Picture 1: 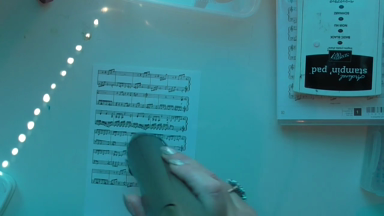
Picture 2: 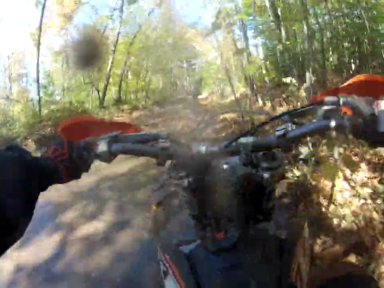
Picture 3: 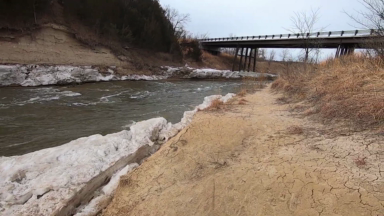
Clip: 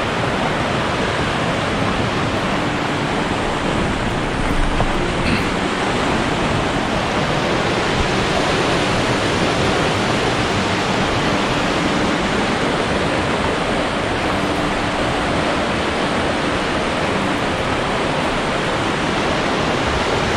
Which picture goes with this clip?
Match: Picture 3